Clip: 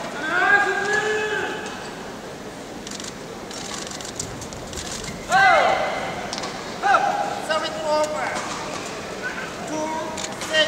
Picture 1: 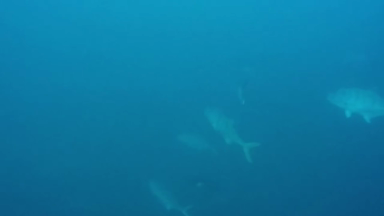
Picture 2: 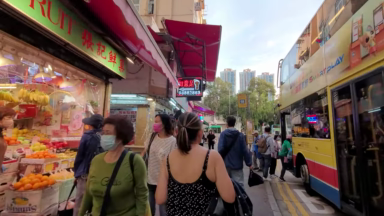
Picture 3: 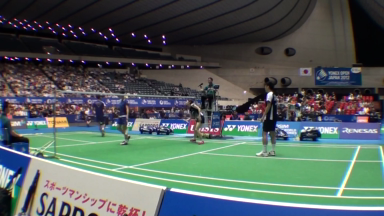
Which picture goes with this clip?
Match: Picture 3